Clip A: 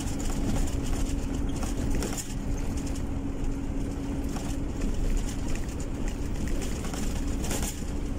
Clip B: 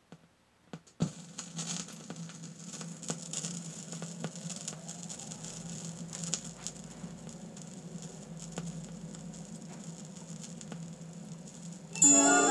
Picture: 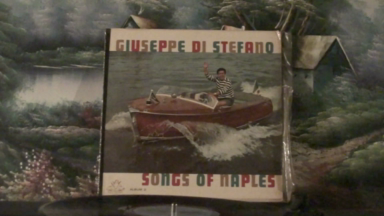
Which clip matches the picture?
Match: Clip B